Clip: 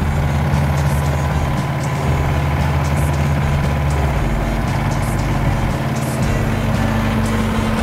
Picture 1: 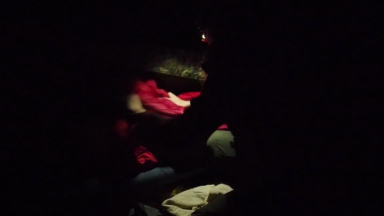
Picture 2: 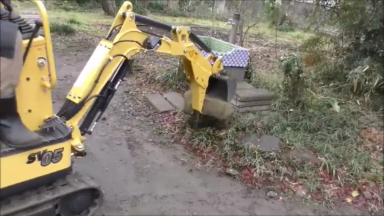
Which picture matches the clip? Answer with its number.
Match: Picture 2